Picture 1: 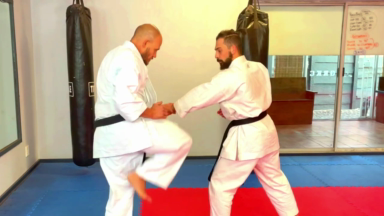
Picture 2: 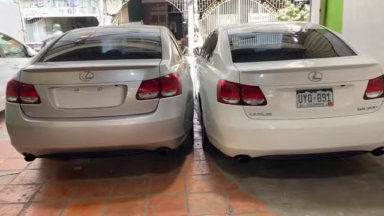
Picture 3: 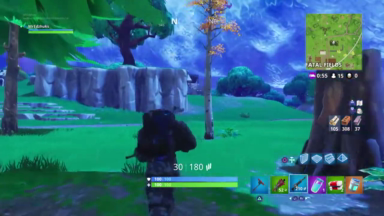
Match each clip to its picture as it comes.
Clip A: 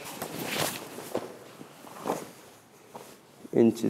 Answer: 1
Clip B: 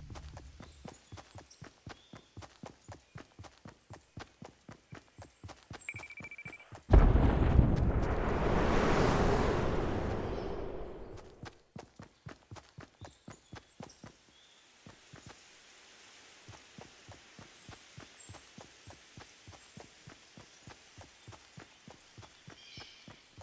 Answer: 3